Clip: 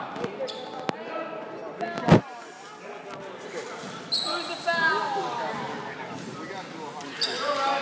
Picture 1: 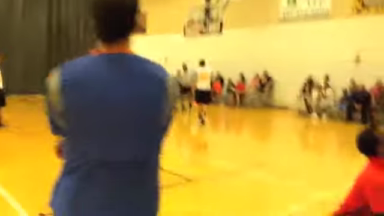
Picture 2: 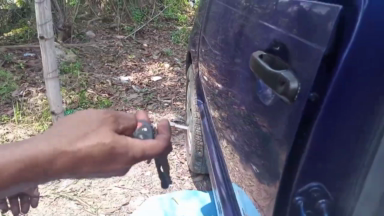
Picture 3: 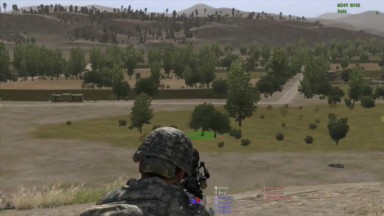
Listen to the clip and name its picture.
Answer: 1